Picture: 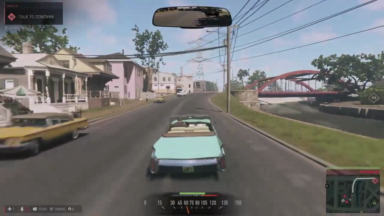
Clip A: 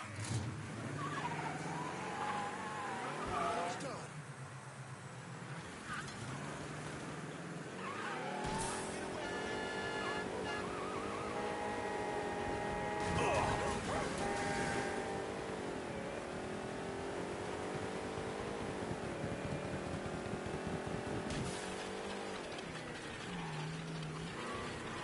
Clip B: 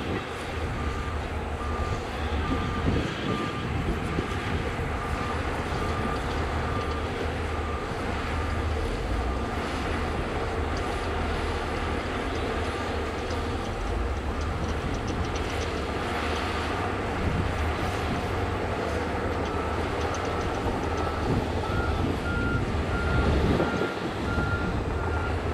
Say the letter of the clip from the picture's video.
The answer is A